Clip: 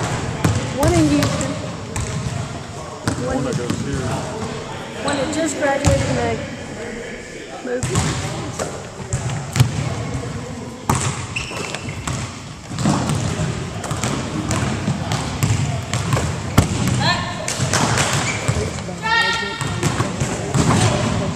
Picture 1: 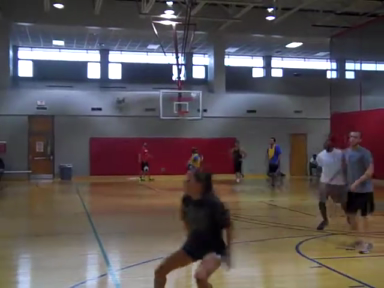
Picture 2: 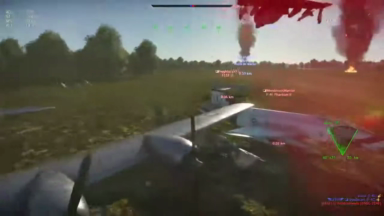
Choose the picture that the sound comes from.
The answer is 1